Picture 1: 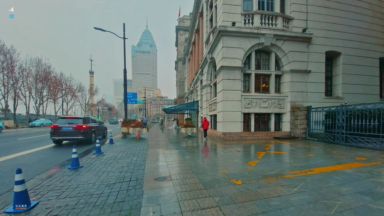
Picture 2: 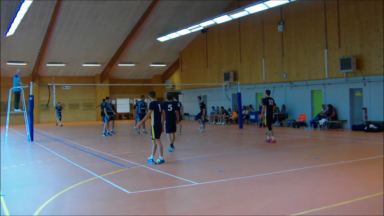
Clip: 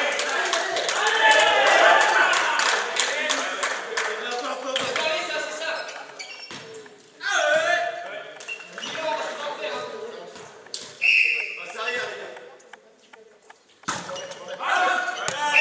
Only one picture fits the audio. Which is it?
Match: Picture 2